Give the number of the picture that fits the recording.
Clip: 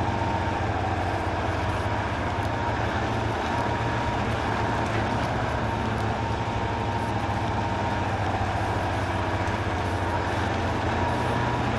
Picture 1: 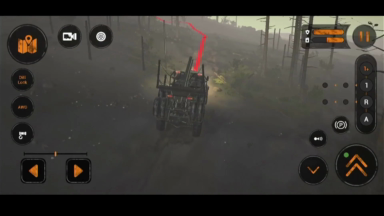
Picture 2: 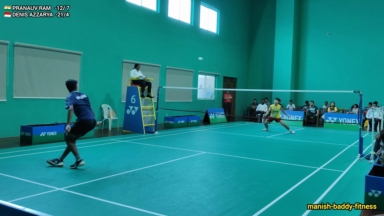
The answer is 1